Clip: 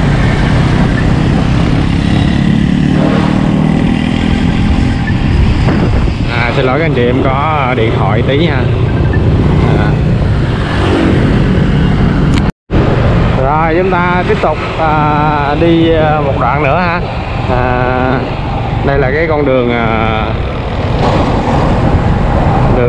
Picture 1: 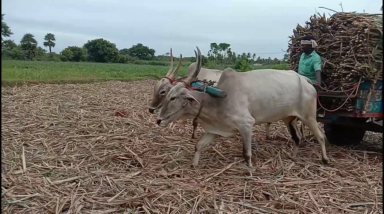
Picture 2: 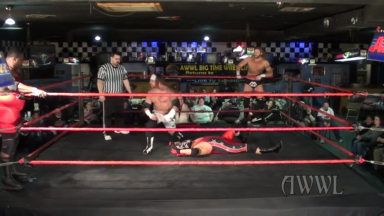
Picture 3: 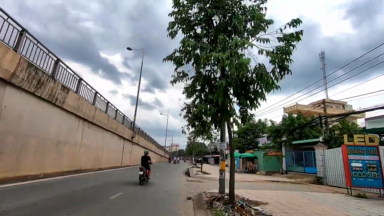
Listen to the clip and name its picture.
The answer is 3